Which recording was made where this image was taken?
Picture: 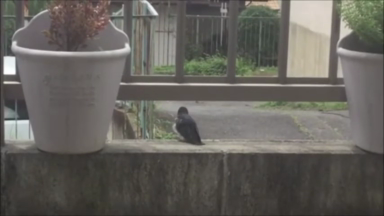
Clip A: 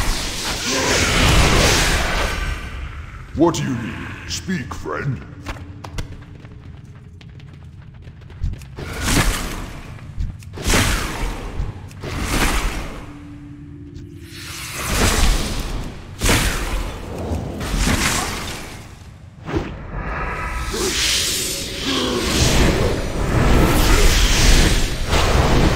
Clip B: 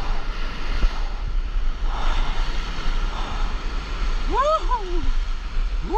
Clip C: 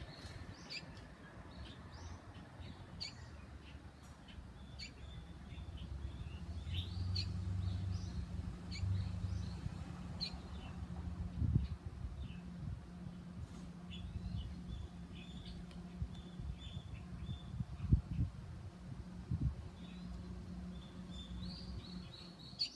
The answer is C